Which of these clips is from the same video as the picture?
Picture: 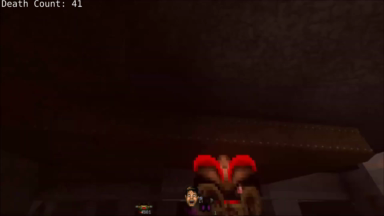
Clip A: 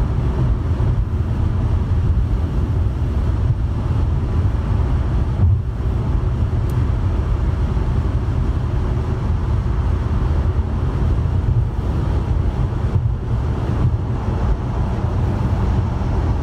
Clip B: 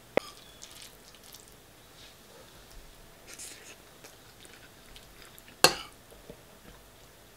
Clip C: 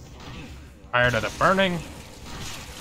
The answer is C